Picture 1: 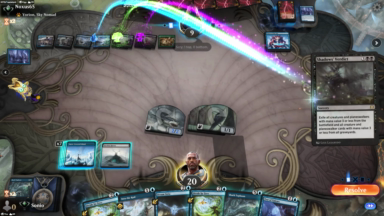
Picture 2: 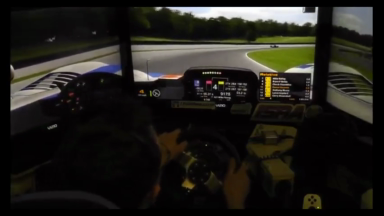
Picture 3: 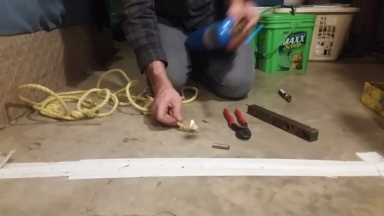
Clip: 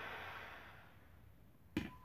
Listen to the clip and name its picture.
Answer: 3